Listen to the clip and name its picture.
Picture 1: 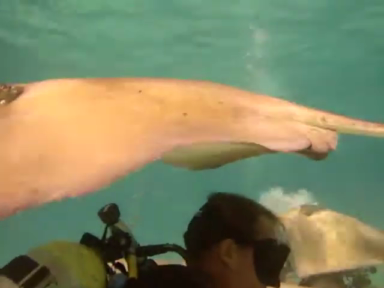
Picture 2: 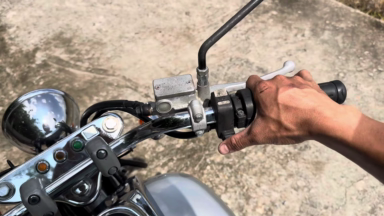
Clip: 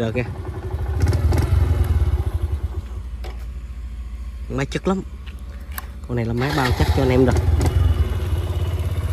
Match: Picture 2